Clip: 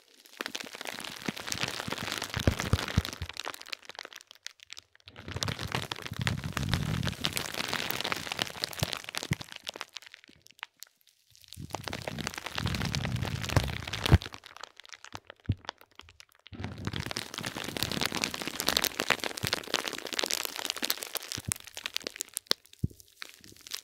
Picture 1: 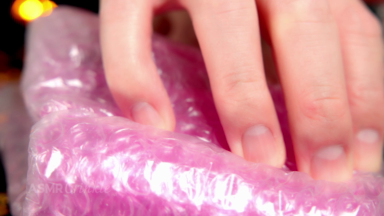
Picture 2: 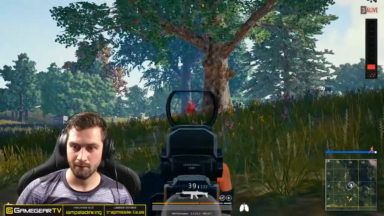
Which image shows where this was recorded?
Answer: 1